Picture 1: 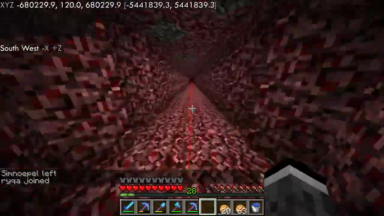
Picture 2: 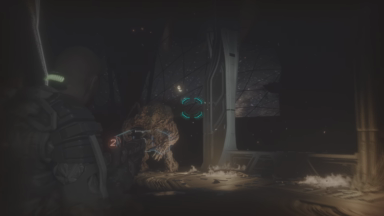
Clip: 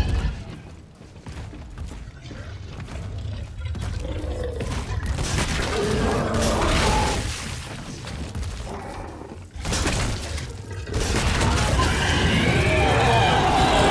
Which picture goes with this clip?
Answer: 2